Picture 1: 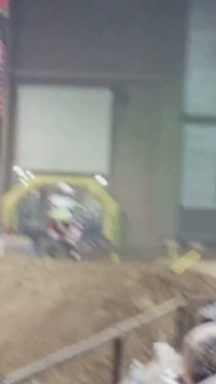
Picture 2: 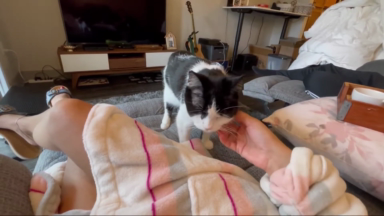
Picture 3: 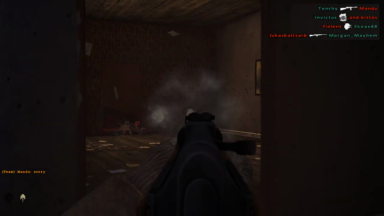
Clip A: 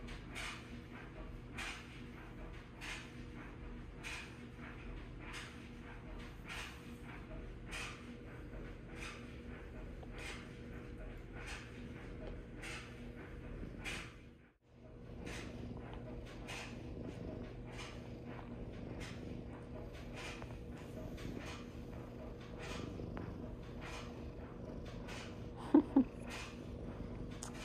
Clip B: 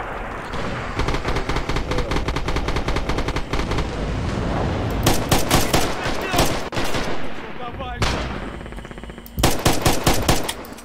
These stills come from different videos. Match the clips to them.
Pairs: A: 2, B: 3